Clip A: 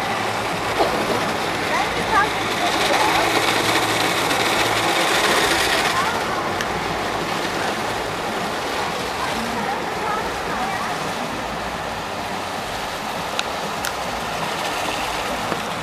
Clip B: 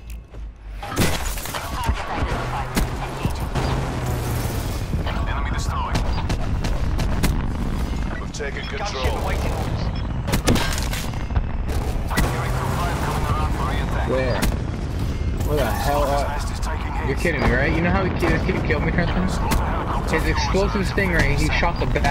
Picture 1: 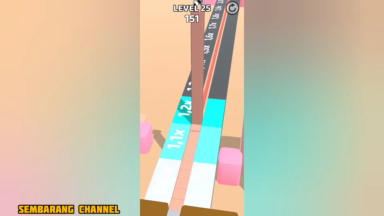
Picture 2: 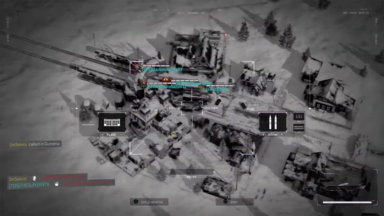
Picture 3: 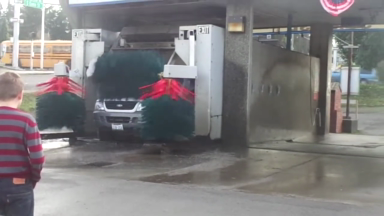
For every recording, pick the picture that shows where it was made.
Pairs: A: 3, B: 2